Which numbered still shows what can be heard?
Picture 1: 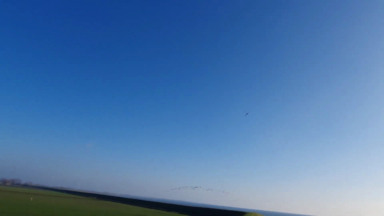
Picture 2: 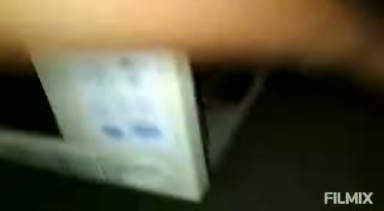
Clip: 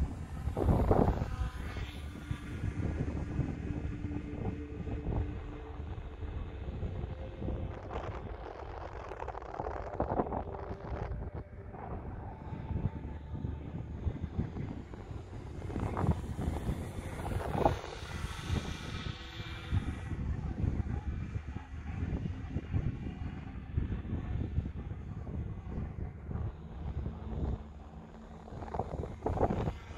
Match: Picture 1